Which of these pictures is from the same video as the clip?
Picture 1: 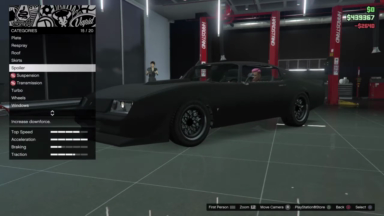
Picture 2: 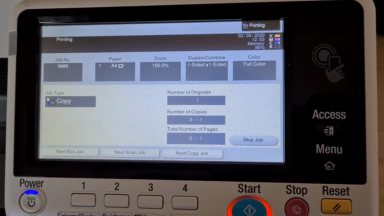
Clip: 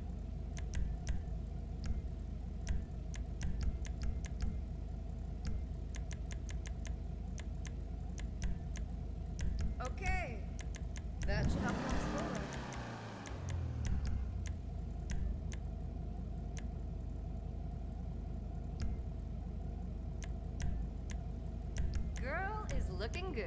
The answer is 1